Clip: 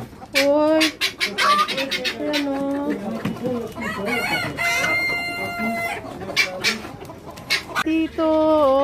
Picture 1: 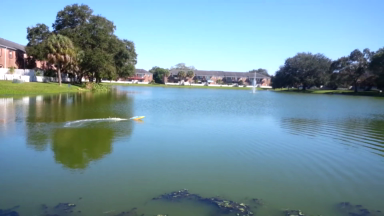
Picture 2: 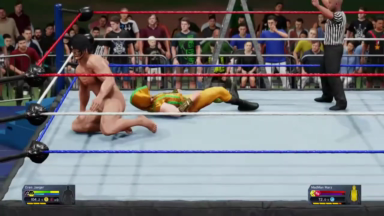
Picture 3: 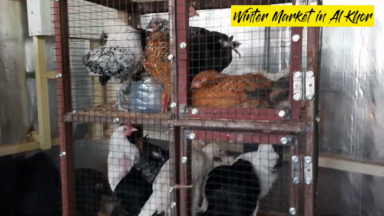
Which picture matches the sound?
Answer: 3